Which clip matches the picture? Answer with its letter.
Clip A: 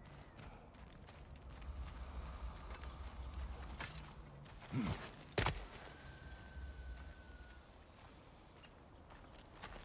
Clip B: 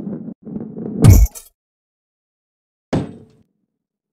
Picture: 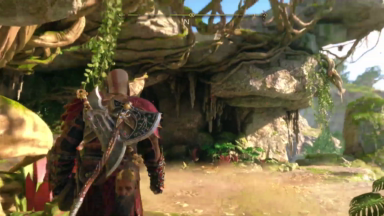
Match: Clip A